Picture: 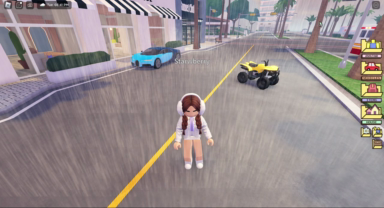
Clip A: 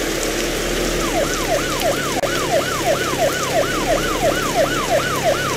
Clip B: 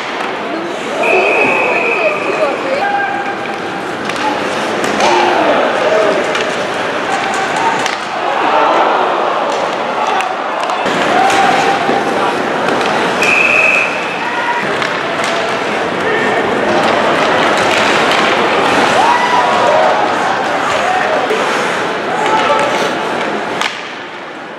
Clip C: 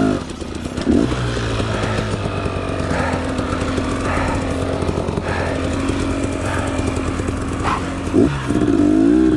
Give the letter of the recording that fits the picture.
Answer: A